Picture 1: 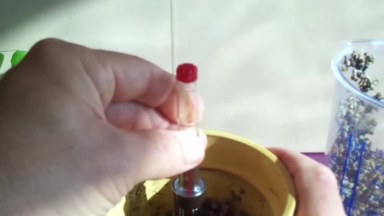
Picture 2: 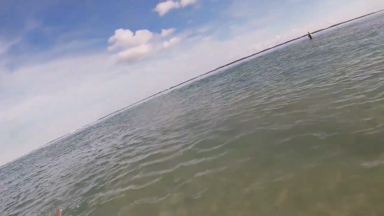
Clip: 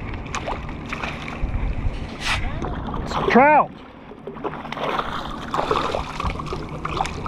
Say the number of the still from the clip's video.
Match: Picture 2